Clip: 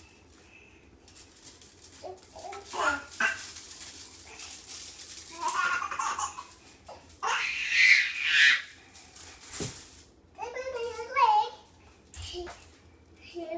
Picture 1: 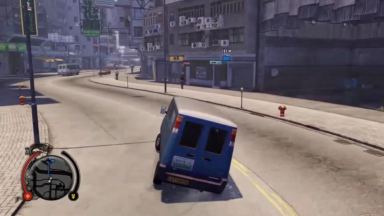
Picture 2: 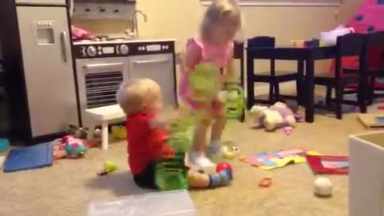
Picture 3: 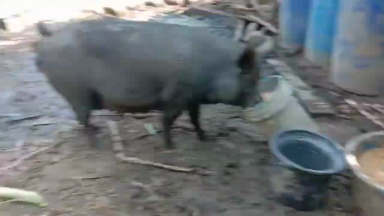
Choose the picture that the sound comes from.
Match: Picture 2